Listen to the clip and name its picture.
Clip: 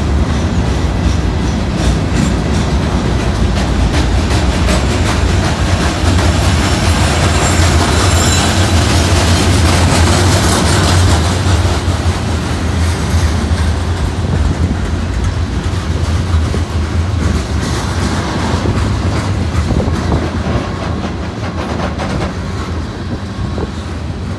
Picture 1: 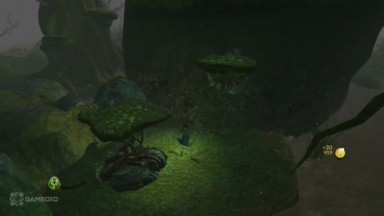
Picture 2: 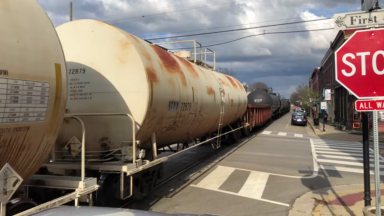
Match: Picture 2